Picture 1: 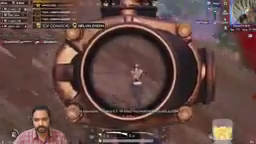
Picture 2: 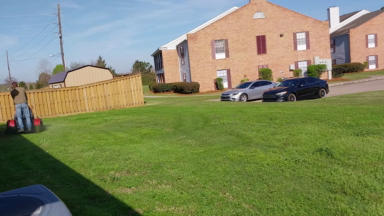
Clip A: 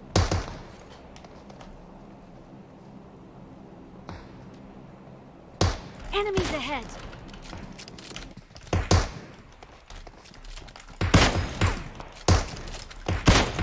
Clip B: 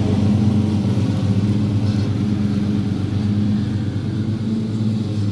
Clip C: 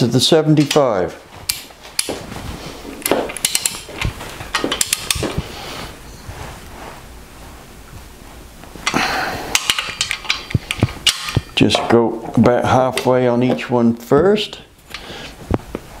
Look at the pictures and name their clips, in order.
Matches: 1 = A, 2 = B